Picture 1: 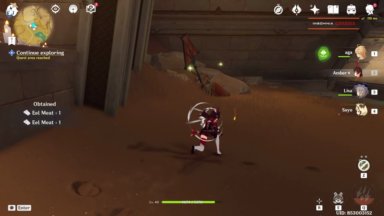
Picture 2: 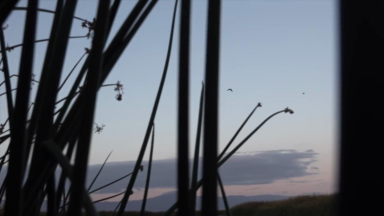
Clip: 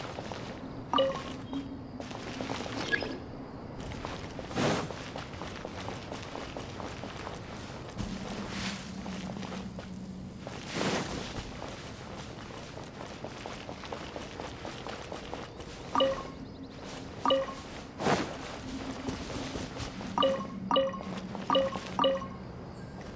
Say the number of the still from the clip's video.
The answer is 1